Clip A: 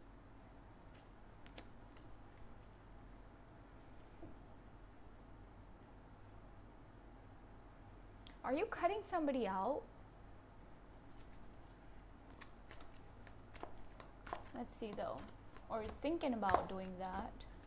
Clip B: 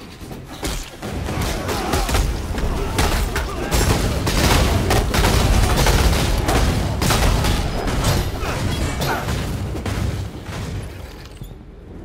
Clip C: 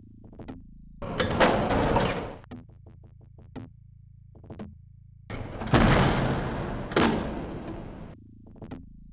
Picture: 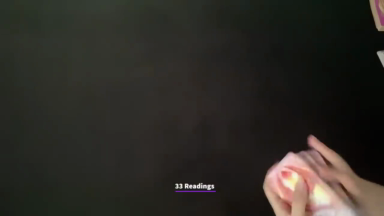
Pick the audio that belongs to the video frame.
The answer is A